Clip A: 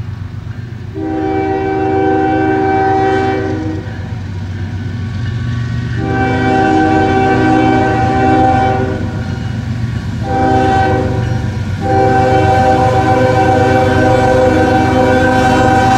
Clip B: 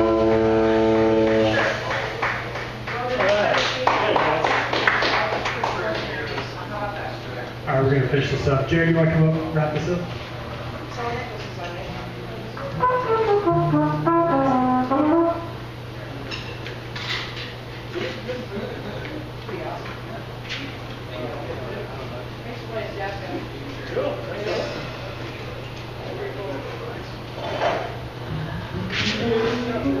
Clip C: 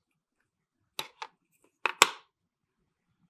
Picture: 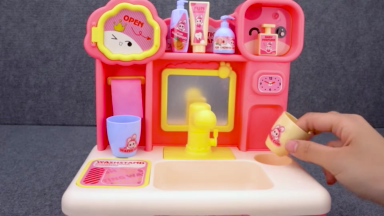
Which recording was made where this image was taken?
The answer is C